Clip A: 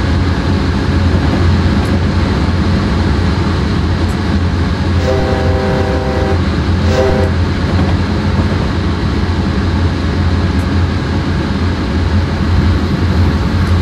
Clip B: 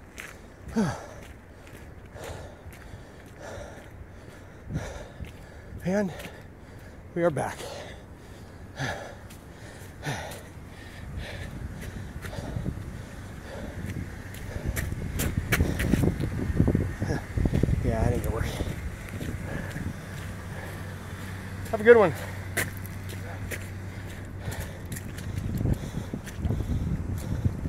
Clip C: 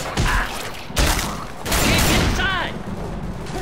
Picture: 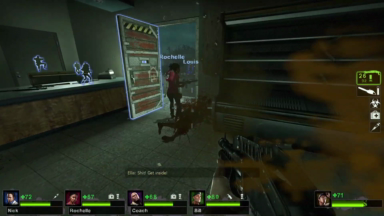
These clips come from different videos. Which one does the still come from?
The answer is C